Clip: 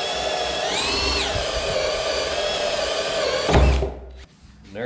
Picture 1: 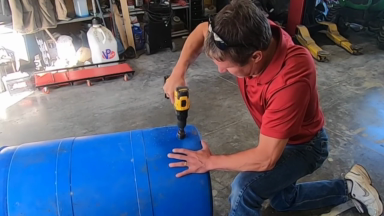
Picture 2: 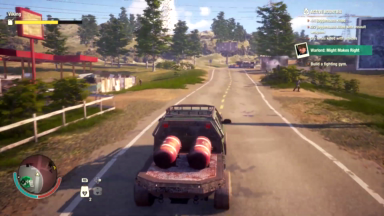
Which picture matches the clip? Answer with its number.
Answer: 1